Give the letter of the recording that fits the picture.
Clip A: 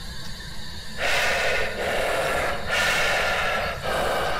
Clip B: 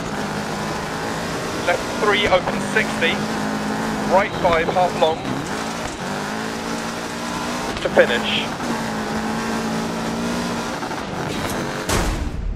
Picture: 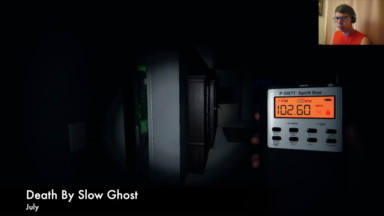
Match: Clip A